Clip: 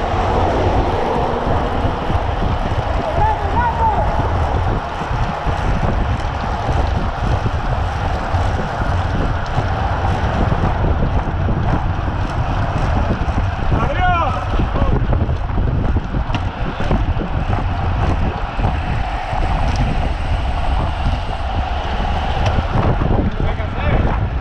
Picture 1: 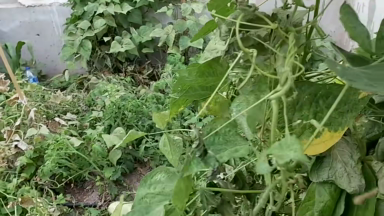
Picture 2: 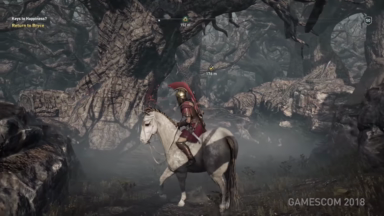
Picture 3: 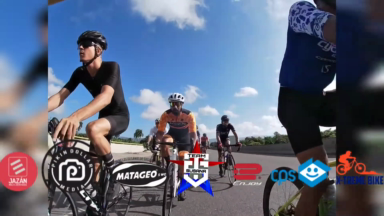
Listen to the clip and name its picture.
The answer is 3